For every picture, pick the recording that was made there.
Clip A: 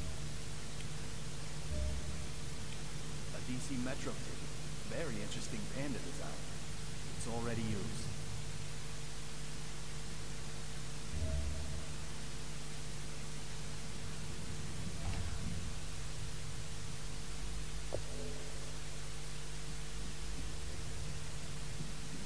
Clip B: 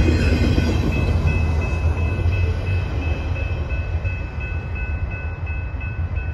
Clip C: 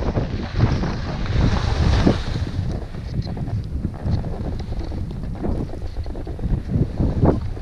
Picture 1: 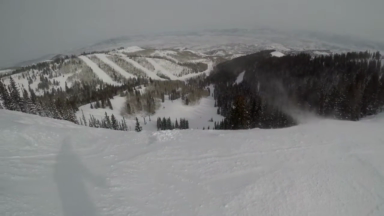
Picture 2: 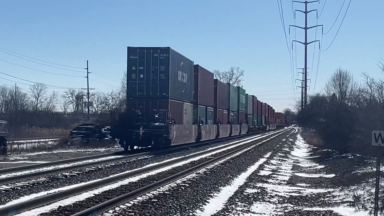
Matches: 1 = C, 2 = B